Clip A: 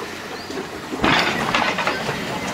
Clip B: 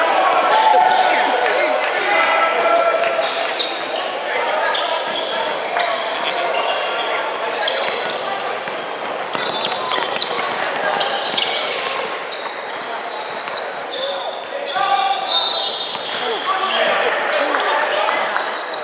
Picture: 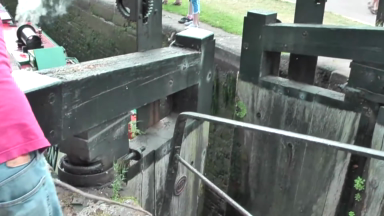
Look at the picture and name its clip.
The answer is A